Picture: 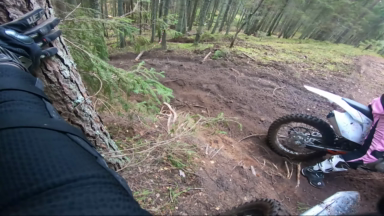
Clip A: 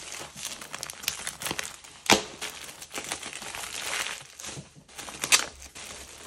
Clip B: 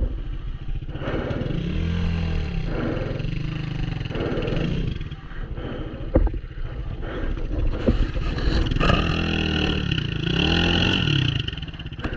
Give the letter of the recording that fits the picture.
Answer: B